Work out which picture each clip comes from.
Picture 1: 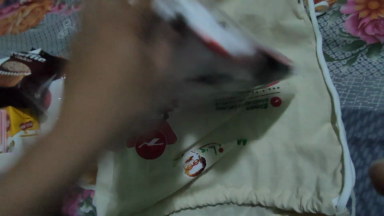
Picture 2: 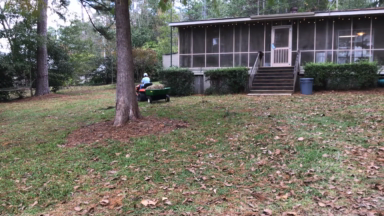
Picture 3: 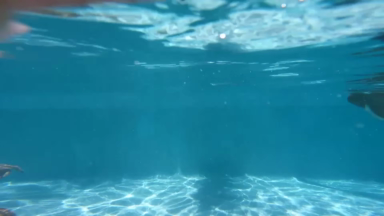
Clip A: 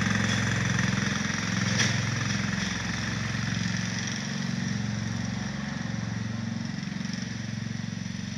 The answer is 2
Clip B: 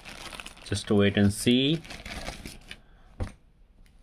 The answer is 1